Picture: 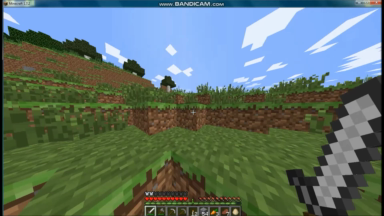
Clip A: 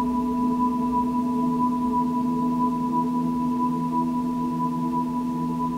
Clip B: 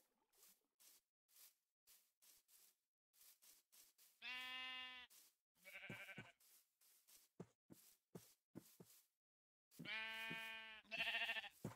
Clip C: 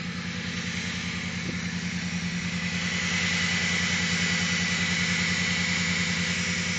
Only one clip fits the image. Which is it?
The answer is B